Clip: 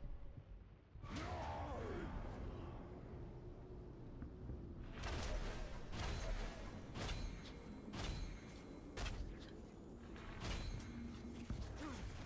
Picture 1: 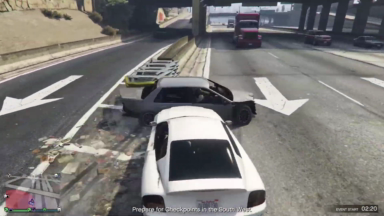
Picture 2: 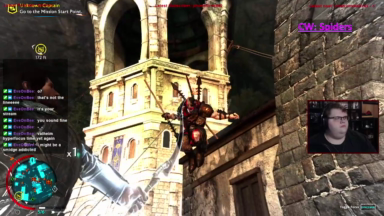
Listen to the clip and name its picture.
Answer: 2